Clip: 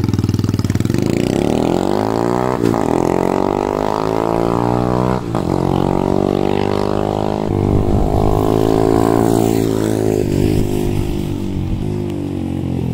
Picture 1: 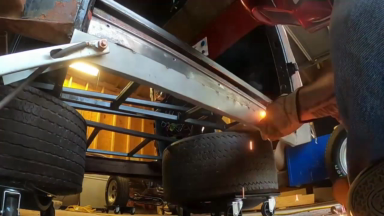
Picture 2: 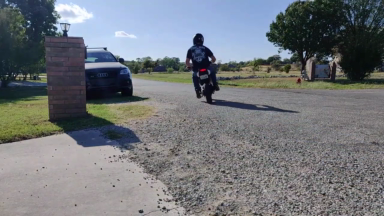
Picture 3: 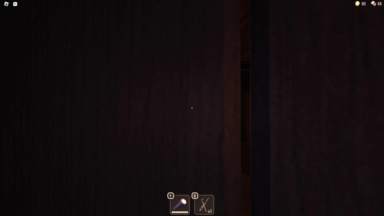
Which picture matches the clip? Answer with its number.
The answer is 2